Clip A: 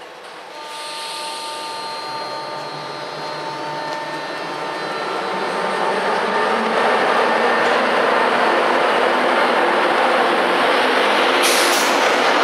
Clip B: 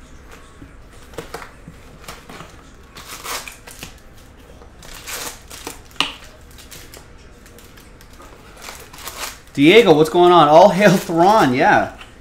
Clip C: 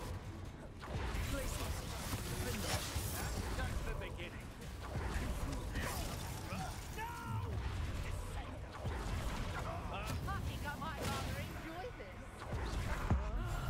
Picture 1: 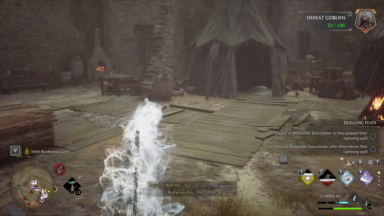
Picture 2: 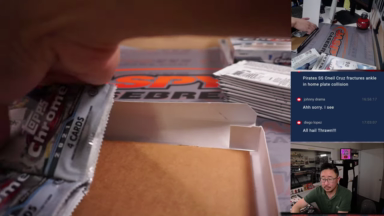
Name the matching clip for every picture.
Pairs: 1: C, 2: B